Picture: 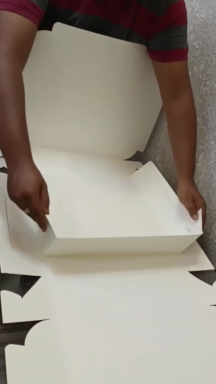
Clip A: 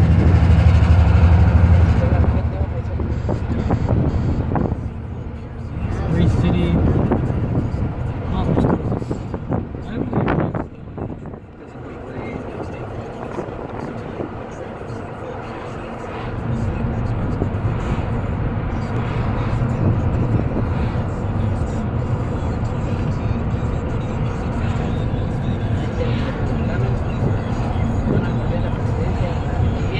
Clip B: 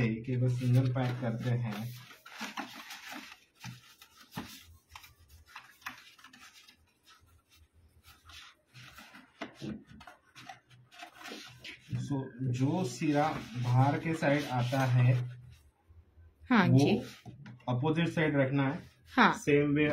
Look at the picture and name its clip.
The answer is B